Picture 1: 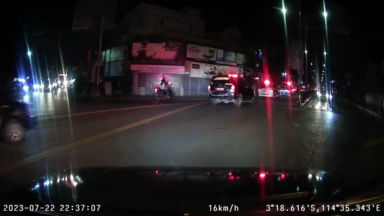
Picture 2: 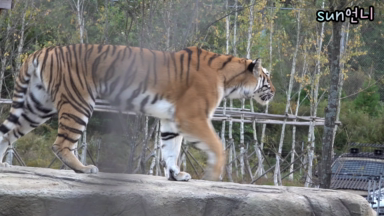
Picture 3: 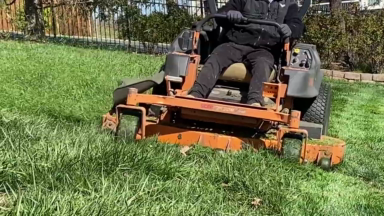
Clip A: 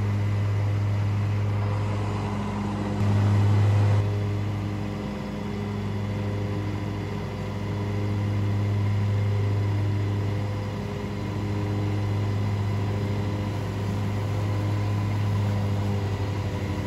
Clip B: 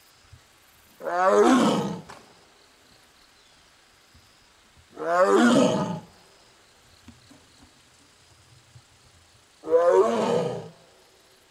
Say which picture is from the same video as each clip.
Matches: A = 3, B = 2